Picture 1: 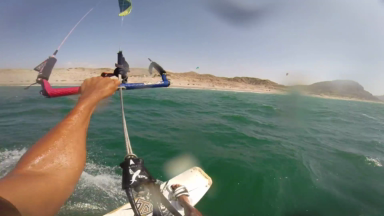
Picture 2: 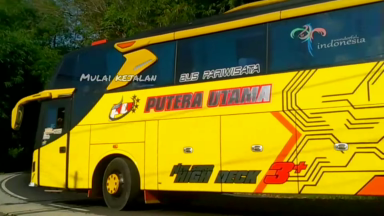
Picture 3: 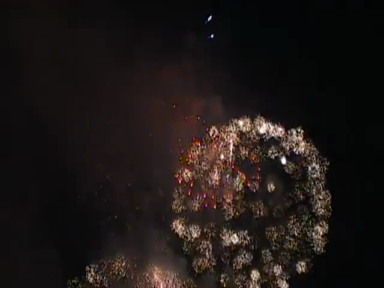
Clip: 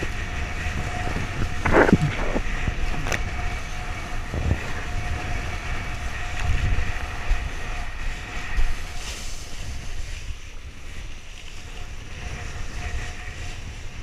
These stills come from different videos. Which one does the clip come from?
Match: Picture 1